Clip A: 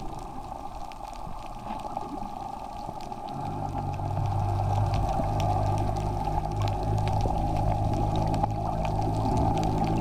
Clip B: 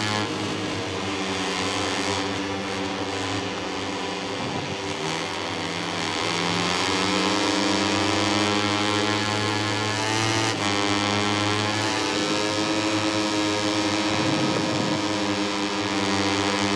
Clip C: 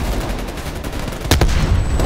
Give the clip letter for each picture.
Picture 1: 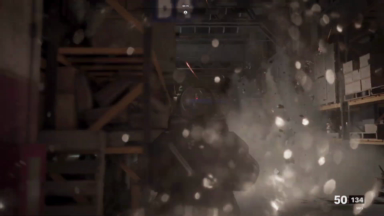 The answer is C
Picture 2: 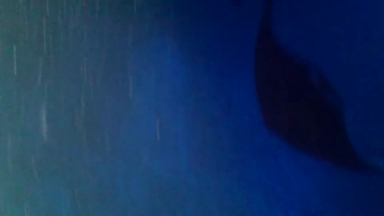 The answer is A